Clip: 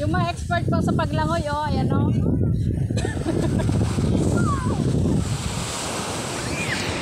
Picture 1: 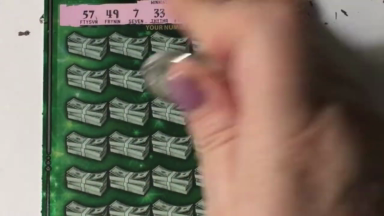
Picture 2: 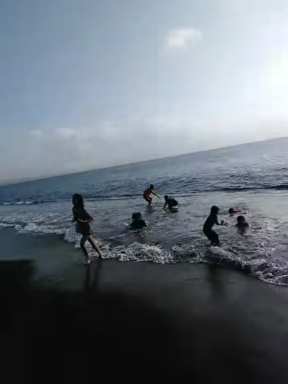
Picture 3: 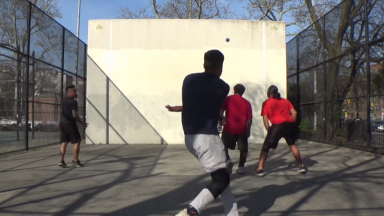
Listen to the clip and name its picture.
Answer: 2